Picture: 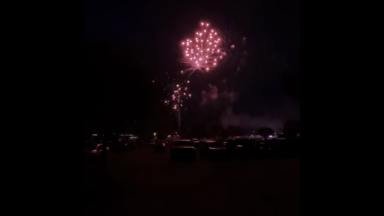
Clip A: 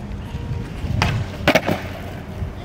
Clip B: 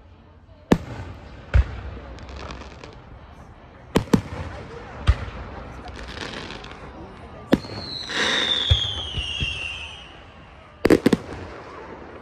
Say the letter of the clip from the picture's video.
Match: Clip B